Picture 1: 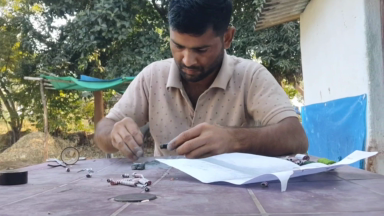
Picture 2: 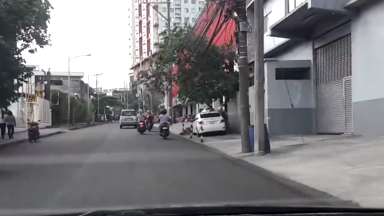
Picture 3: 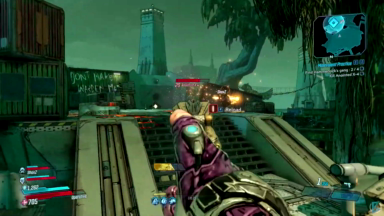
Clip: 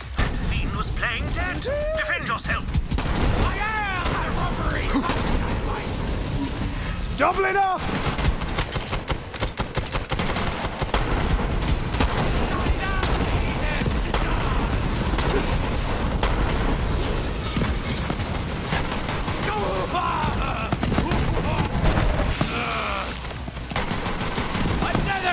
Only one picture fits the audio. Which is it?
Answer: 3